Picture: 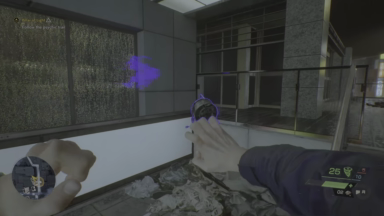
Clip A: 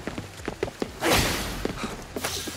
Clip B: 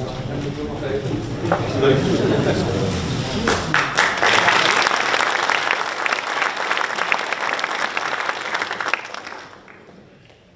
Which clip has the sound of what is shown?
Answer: A